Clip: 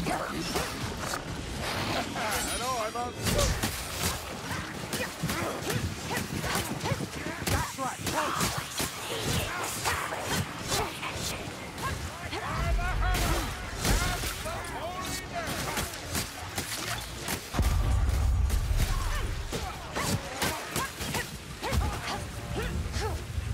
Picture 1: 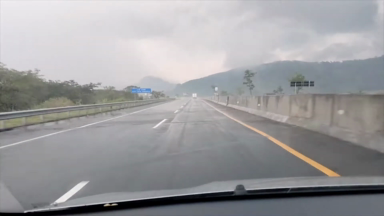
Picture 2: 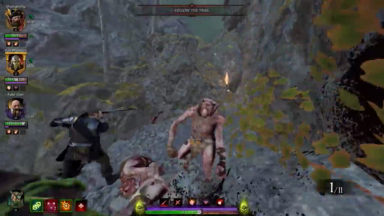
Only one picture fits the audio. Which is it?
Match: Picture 2